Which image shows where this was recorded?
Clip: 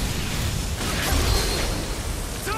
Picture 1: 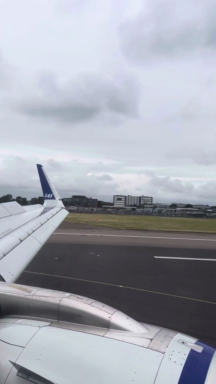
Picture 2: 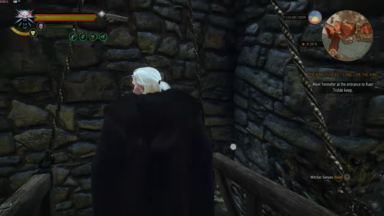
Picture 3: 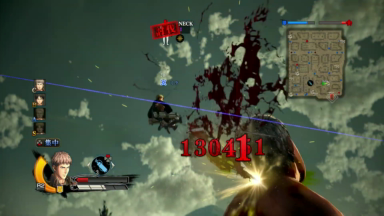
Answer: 3